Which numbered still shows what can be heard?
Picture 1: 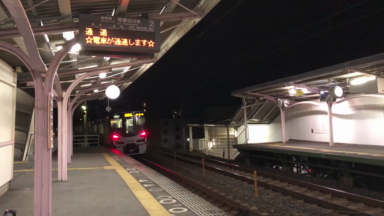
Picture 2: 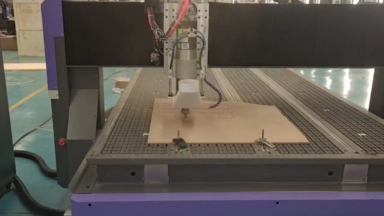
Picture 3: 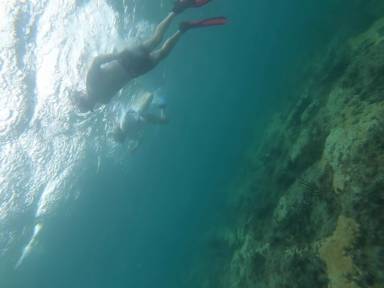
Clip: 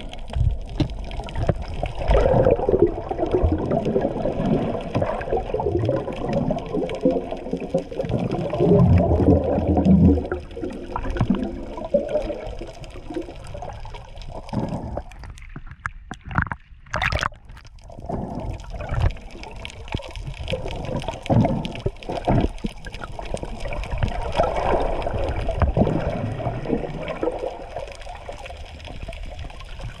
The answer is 3